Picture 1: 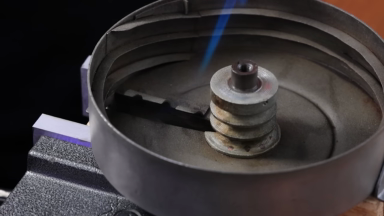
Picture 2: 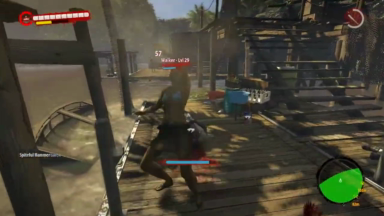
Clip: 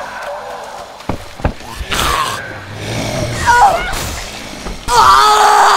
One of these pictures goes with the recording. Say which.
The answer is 2